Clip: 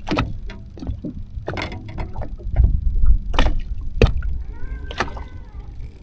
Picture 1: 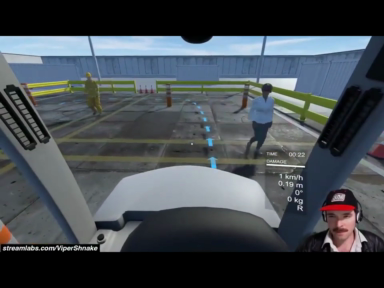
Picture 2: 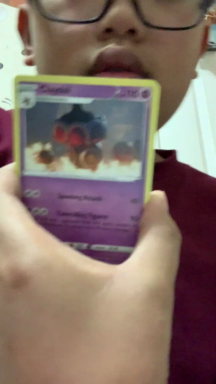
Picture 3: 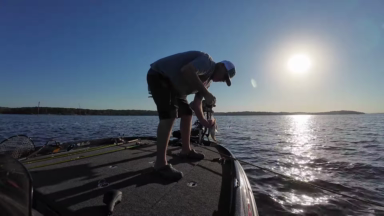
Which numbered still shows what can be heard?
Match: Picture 3